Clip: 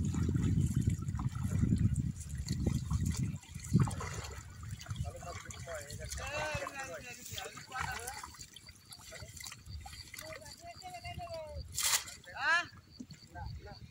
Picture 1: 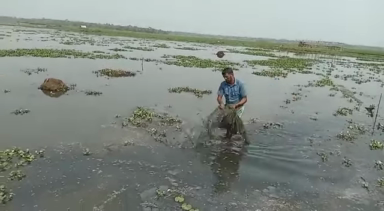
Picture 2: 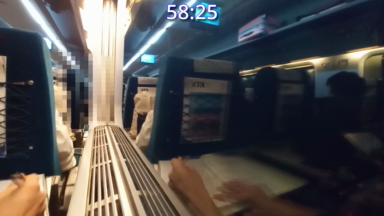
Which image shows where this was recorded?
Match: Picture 1